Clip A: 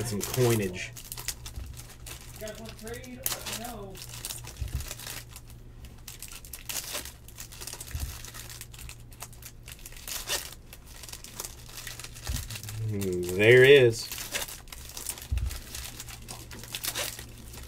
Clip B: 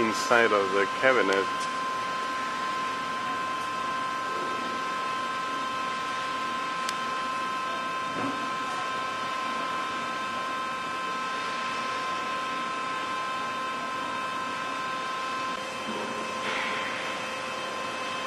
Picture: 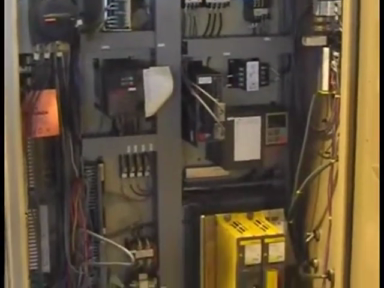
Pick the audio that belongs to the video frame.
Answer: B